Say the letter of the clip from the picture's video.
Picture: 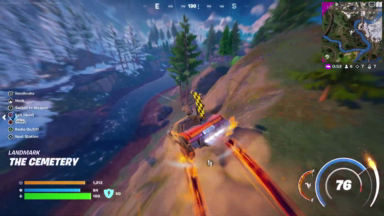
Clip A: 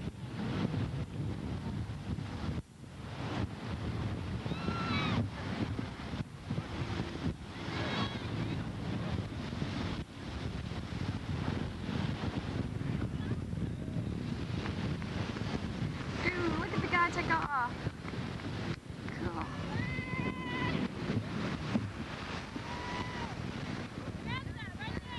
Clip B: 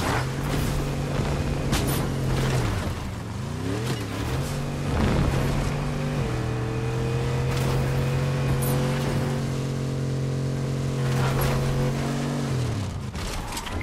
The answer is B